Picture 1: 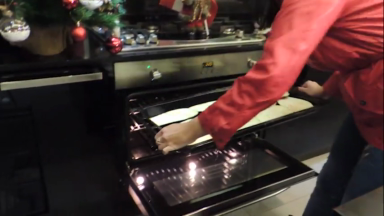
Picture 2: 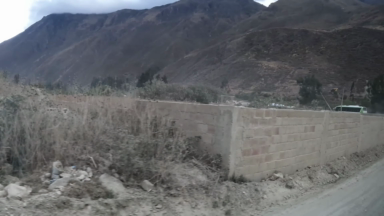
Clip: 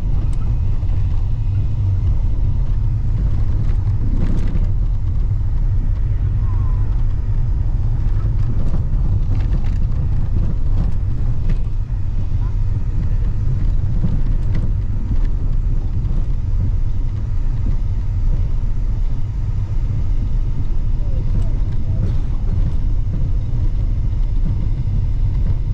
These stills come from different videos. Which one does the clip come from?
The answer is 2